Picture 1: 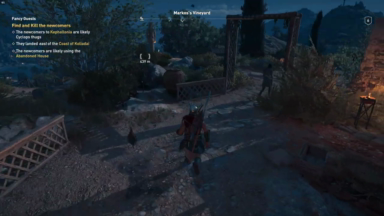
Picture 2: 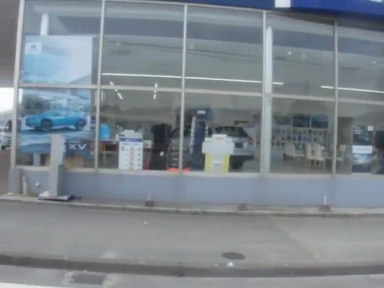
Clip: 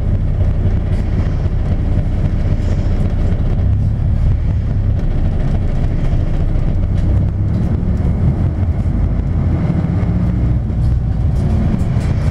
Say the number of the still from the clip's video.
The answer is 2